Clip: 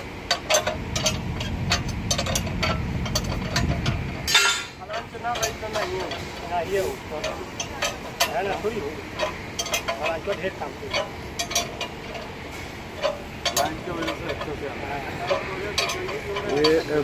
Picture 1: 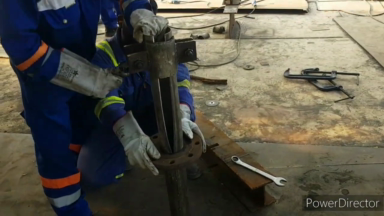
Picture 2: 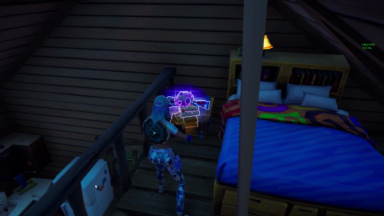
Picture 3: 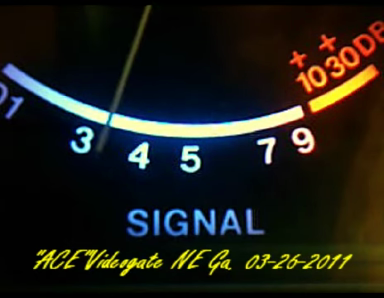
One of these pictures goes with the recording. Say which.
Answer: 1